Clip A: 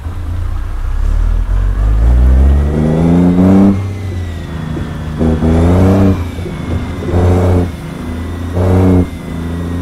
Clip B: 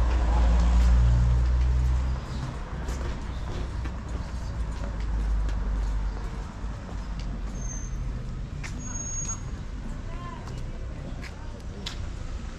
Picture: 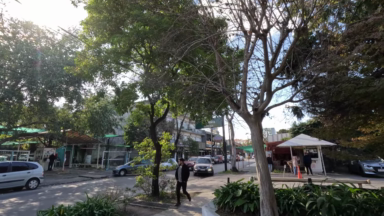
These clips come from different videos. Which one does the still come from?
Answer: B